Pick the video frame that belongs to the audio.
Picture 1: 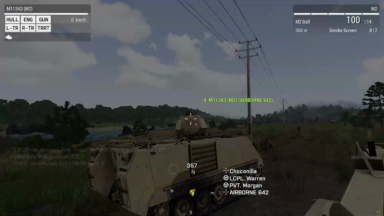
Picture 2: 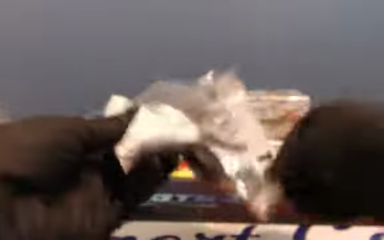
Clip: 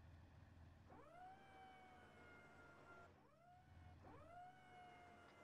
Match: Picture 1